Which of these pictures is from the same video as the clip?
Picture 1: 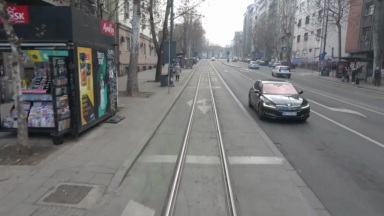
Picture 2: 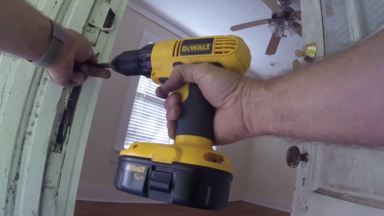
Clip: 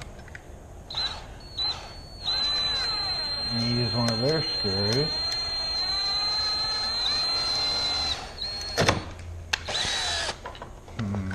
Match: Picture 2